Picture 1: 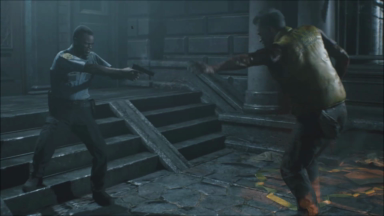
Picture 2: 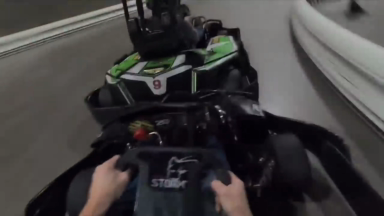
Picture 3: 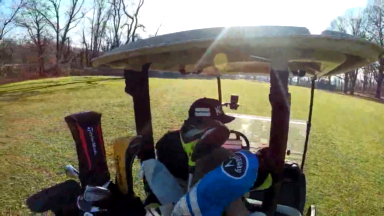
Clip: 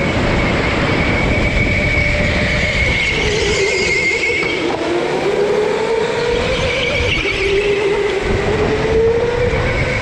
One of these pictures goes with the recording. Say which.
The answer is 2